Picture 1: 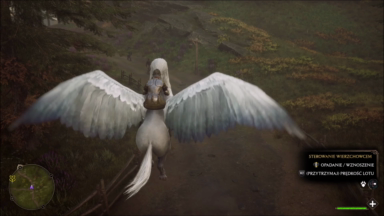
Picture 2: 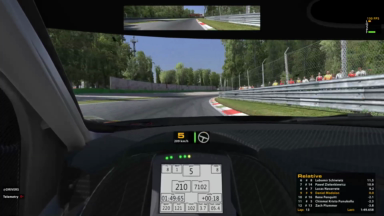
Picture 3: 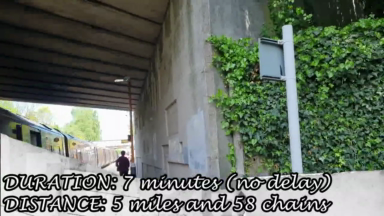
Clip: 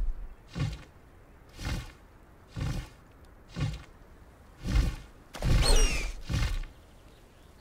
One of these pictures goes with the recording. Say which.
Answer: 1